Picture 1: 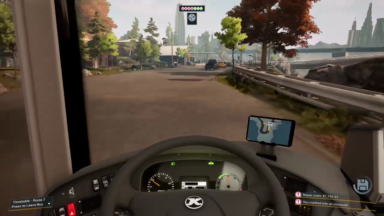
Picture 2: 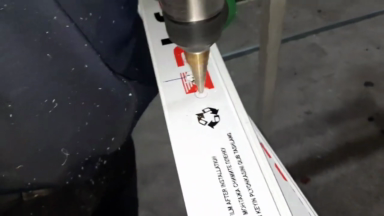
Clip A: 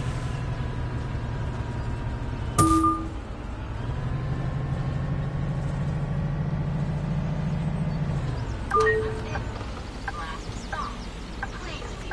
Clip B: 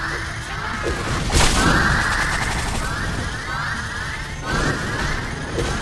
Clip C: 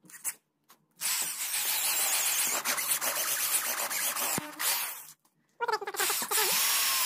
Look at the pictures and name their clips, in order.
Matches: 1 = A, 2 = C